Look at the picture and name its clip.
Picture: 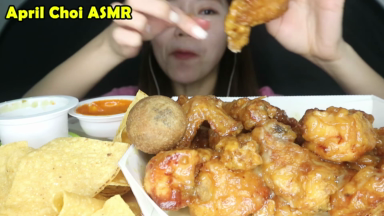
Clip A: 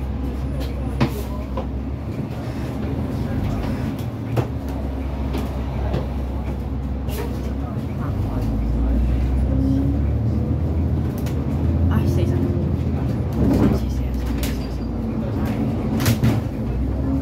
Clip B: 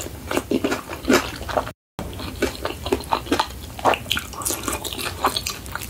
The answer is B